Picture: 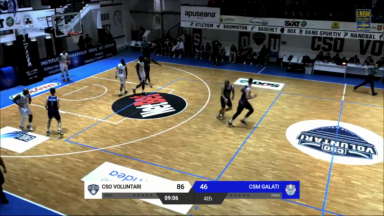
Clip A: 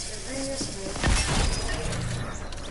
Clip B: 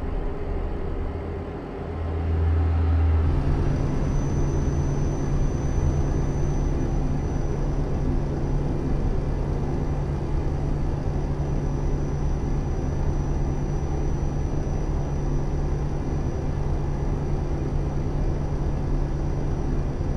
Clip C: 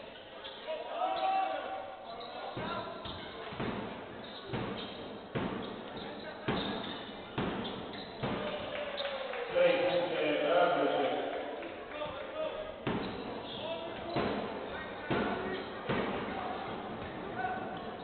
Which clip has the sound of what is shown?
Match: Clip C